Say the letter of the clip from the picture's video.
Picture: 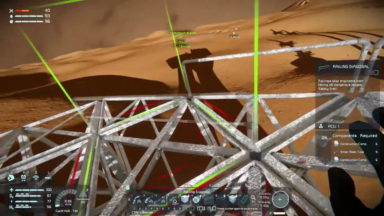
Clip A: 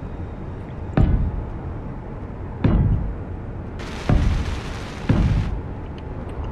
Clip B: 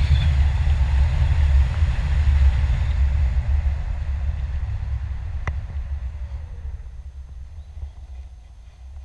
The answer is A